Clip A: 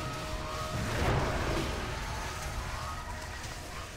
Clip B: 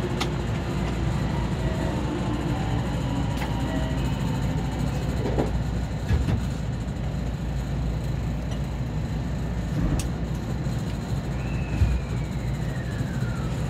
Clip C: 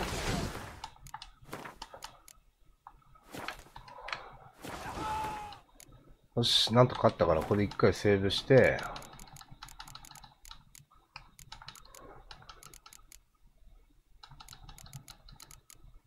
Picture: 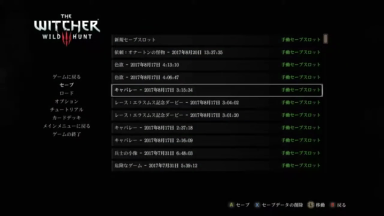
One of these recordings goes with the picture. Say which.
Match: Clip C